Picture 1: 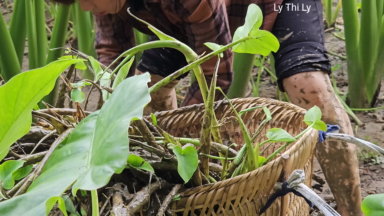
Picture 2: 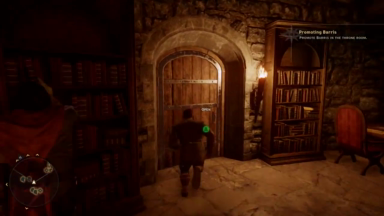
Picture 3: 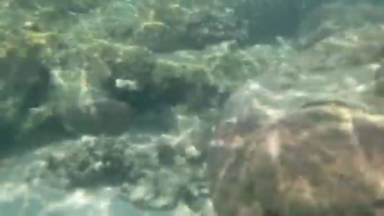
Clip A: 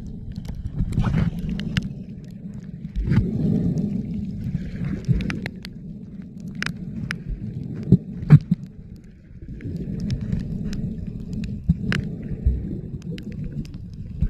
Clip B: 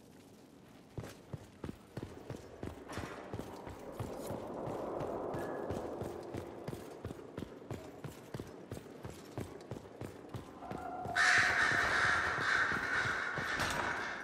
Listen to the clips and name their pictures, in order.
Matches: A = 3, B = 2